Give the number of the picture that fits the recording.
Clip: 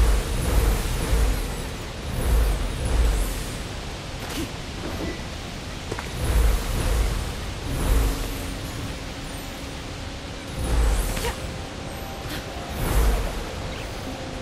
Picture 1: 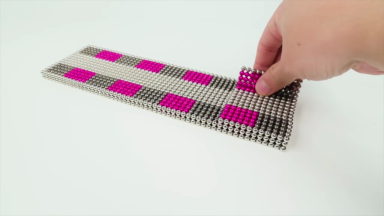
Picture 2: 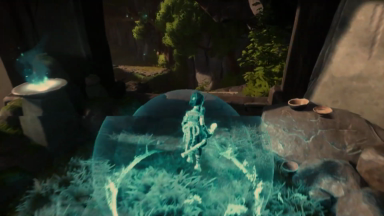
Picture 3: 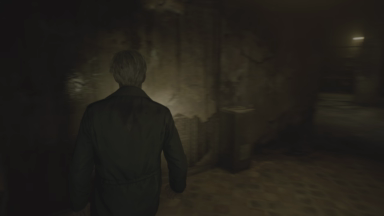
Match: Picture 2